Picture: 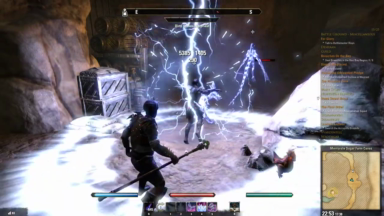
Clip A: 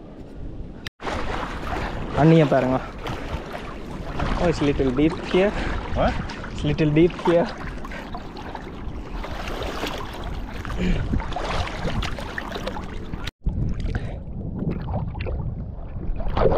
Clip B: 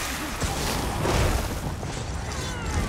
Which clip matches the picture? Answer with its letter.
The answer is B